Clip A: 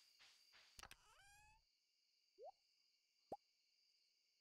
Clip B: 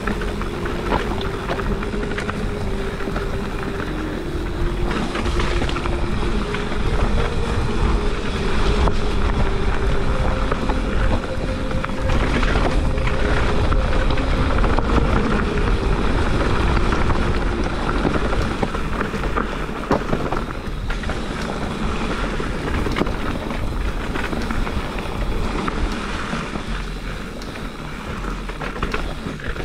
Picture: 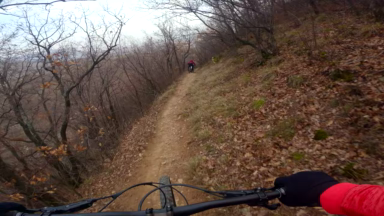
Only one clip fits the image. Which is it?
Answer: B